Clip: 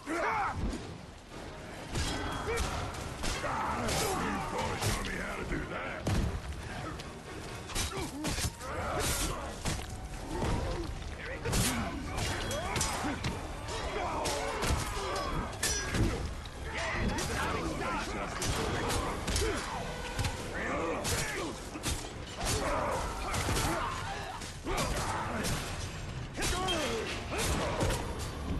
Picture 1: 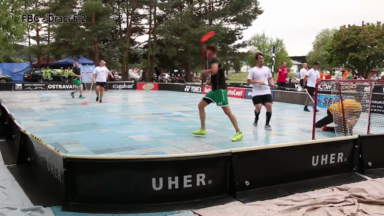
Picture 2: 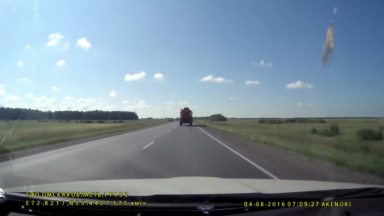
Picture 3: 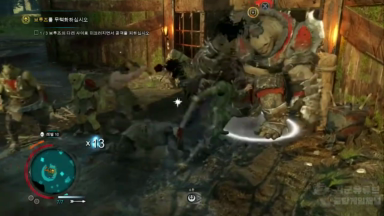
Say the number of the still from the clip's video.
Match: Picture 3